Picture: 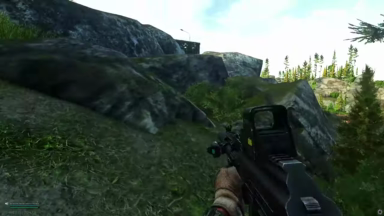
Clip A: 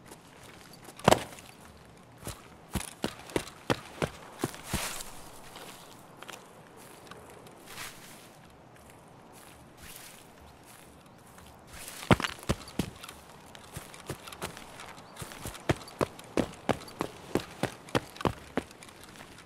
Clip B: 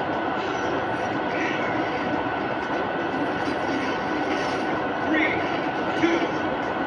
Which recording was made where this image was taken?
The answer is A